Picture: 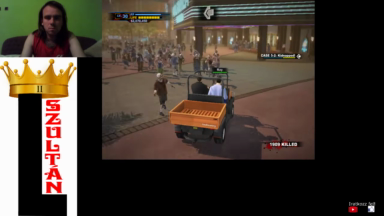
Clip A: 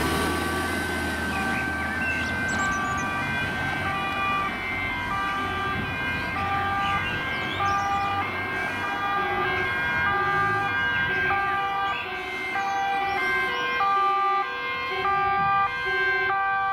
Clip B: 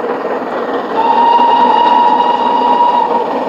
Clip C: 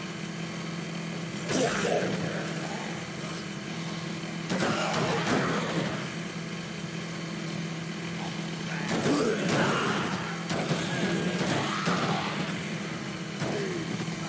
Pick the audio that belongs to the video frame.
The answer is C